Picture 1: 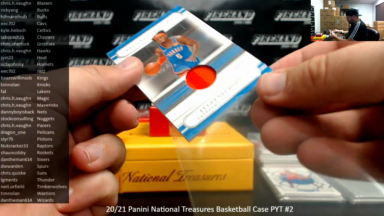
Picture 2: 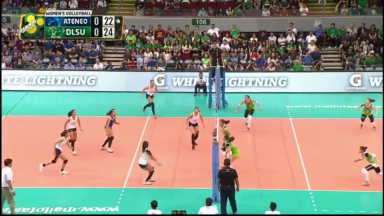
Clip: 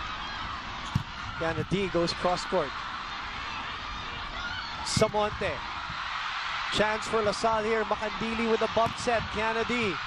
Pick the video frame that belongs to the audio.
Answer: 2